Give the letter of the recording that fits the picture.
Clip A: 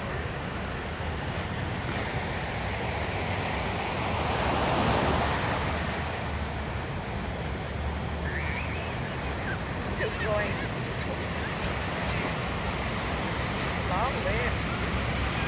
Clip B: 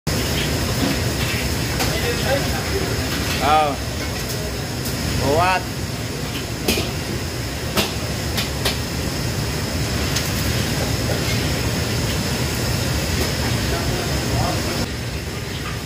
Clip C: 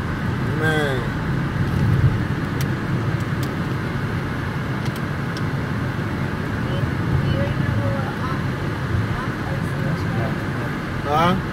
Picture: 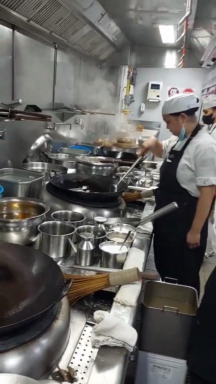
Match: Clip B